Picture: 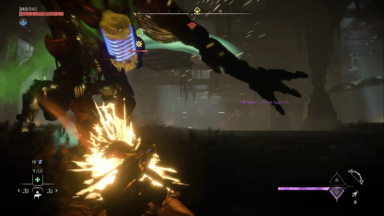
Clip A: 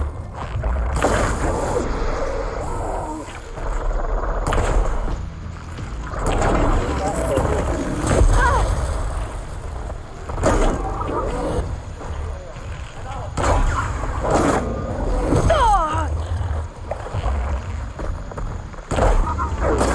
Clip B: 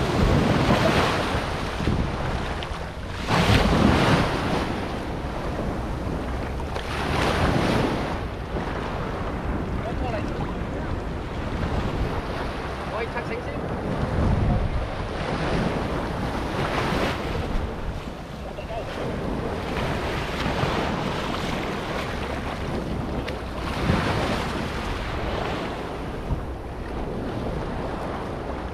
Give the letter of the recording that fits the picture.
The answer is A